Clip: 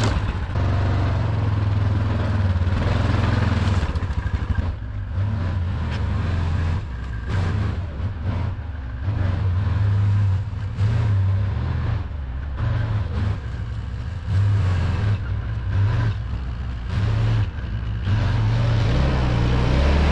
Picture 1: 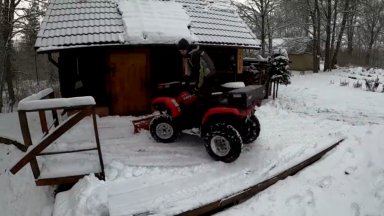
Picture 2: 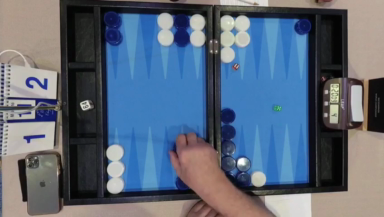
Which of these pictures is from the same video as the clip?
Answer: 1